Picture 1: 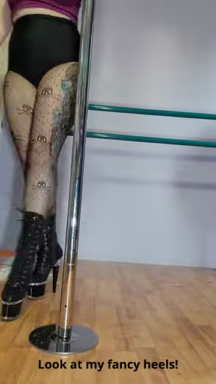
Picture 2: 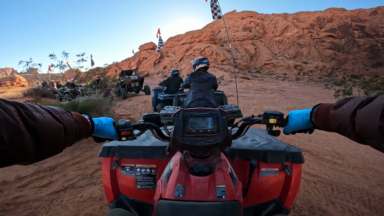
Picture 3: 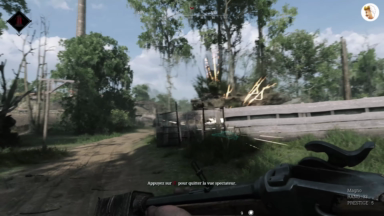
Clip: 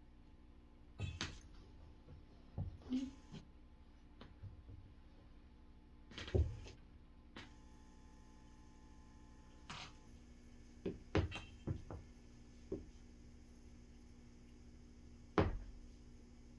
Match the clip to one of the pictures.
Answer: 1